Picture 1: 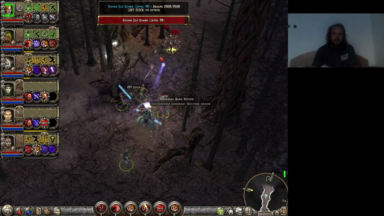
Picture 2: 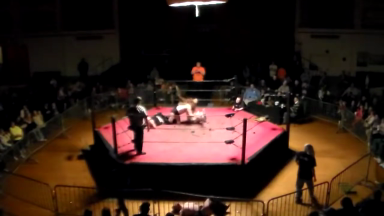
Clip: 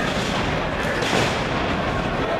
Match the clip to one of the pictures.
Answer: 2